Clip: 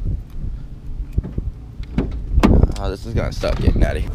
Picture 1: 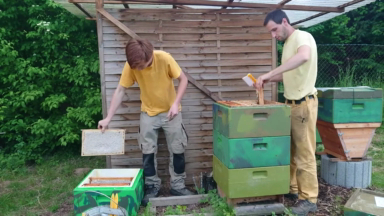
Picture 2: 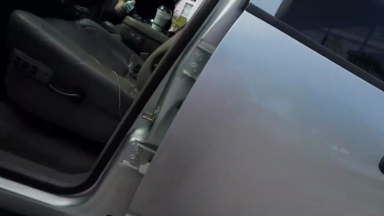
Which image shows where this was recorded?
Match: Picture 2